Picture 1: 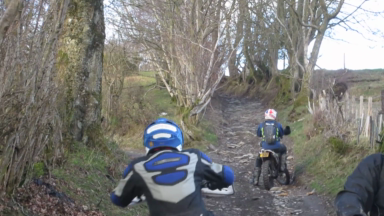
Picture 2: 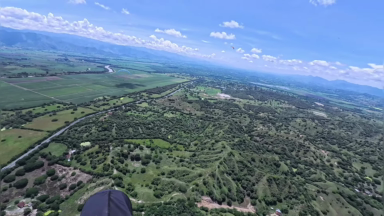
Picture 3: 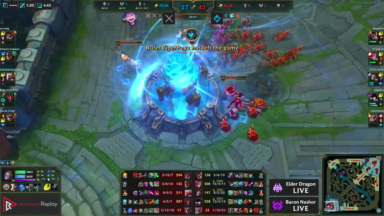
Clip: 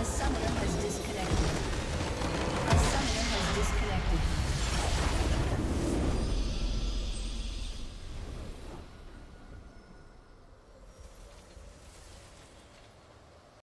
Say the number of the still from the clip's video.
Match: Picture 3